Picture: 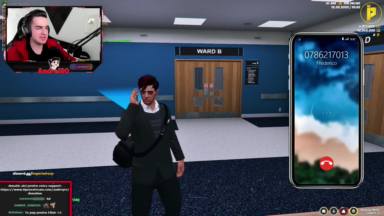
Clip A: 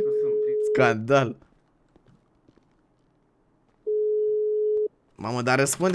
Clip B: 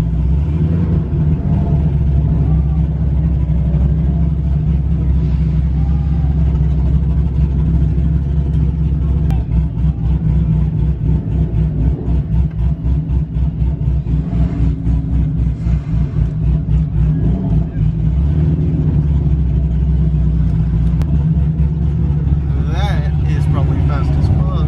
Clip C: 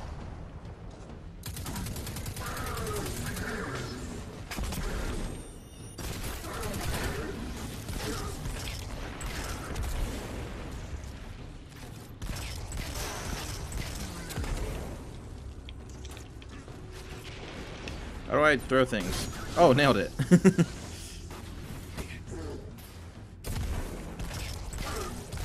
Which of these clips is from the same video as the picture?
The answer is A